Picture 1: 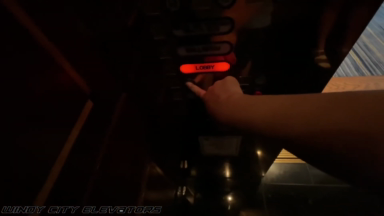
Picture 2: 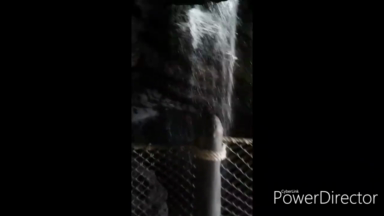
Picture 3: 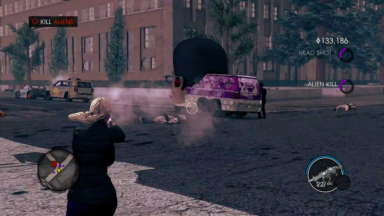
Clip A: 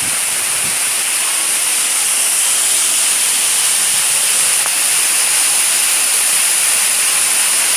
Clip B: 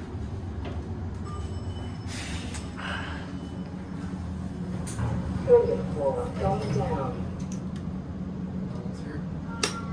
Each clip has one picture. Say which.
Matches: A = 2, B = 1